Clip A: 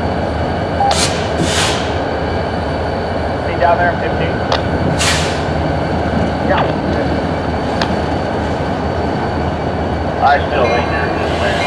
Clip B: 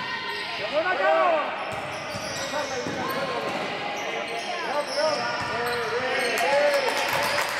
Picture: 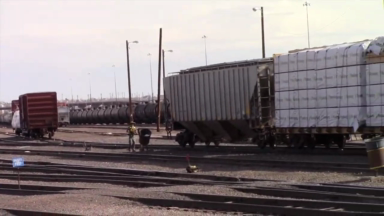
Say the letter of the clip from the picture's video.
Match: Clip A